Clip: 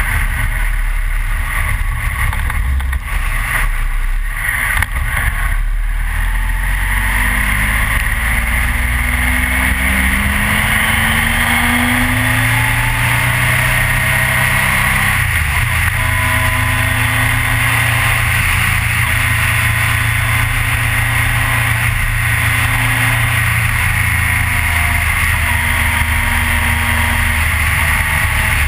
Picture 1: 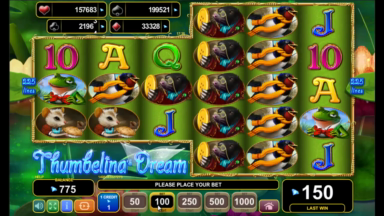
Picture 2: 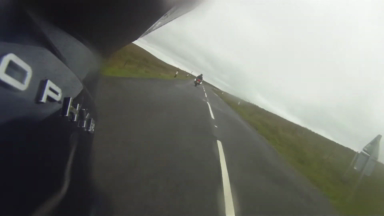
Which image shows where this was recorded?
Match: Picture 2